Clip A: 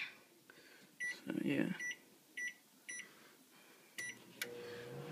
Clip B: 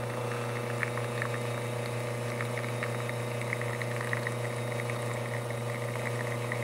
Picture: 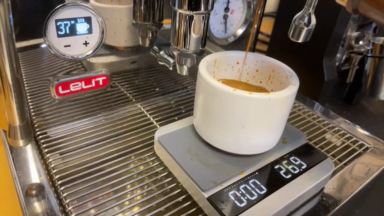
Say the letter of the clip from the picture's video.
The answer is B